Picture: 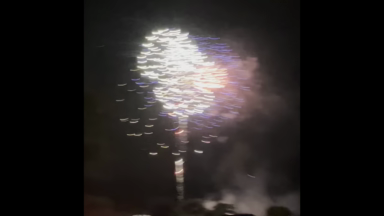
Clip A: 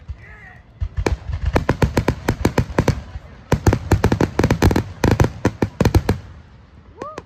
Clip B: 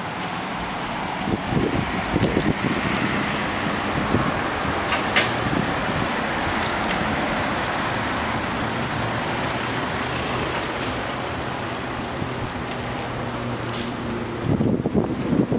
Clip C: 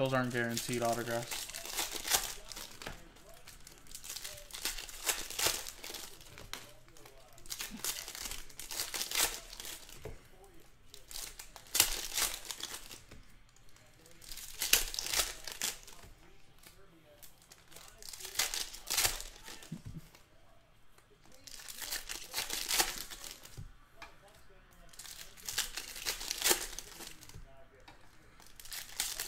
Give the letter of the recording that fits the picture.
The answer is A